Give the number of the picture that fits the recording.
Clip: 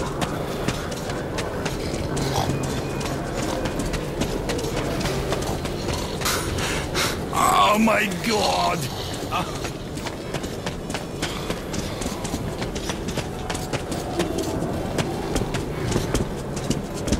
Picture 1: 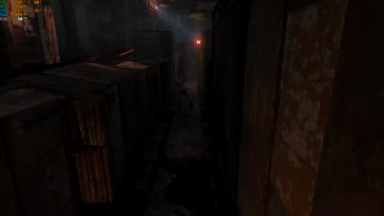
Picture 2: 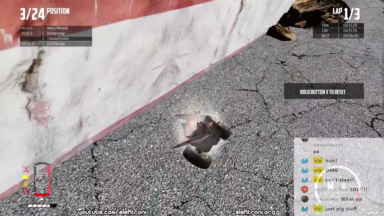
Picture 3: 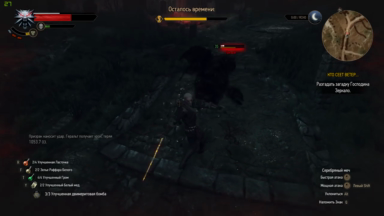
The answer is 1